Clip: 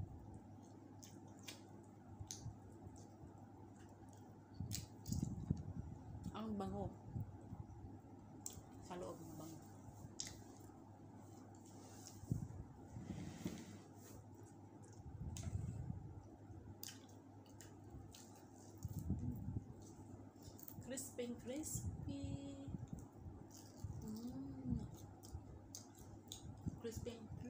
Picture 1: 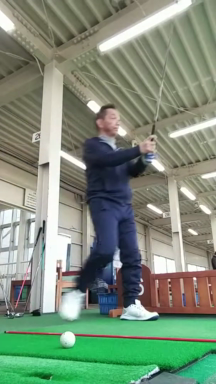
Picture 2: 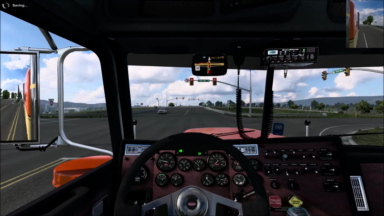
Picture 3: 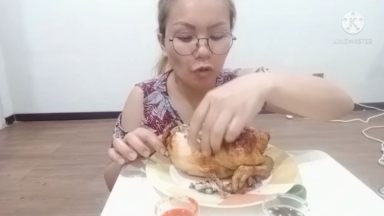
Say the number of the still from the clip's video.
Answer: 3